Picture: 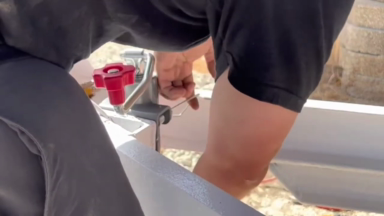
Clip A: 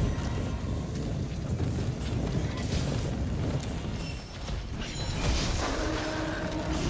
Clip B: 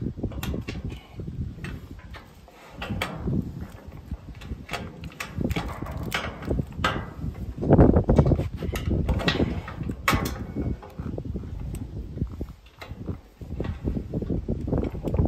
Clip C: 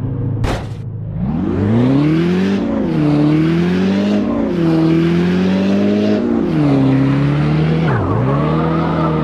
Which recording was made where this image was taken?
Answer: B